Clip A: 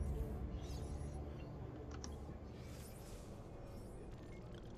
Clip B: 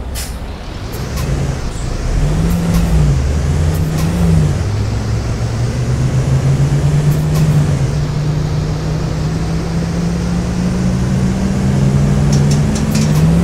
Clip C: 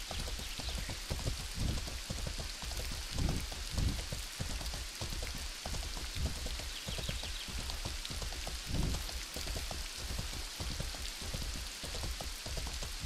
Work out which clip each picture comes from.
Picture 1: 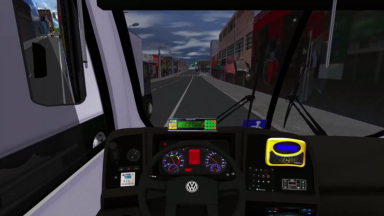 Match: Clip B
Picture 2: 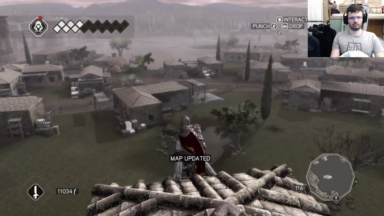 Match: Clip A